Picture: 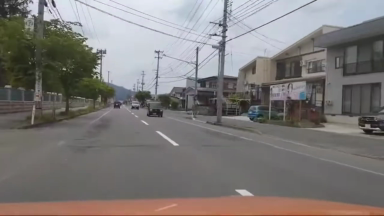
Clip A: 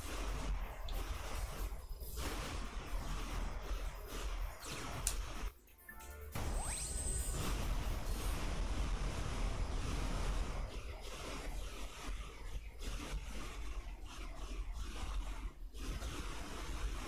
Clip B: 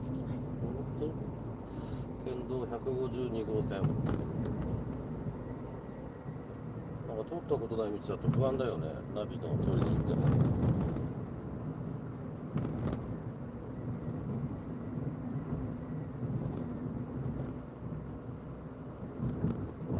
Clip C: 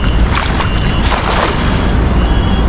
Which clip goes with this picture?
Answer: B